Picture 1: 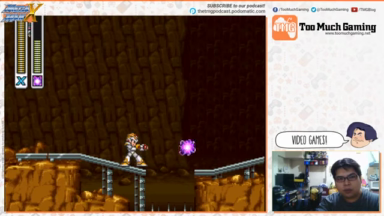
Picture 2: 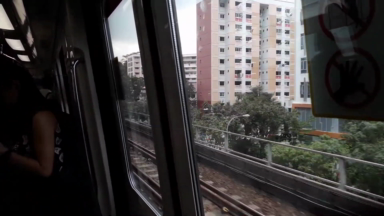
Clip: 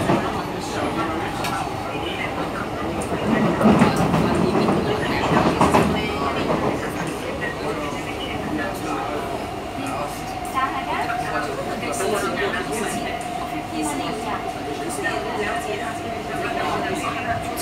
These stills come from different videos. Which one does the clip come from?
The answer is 2